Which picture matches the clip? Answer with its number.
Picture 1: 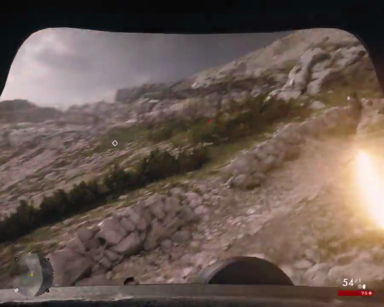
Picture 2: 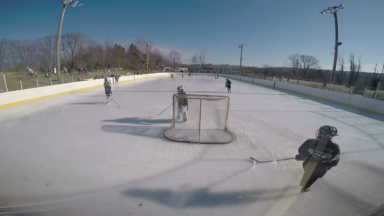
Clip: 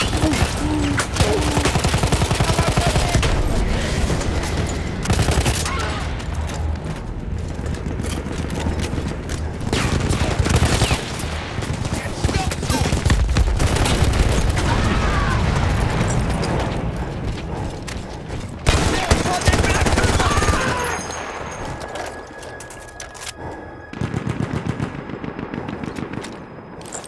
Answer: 1